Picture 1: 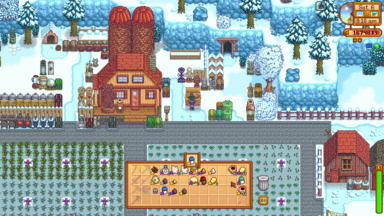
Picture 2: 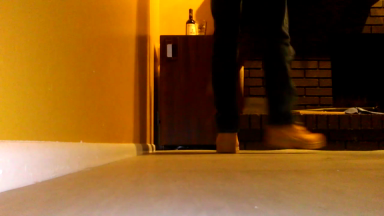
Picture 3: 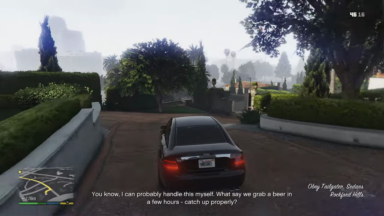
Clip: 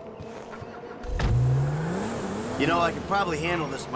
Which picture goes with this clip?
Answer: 3